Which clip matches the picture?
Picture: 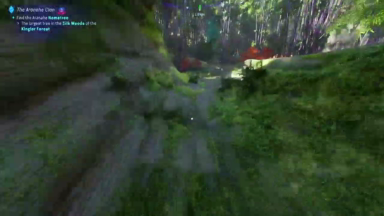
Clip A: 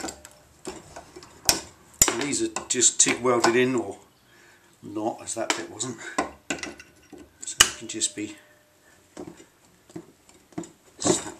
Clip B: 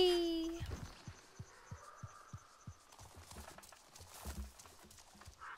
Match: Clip B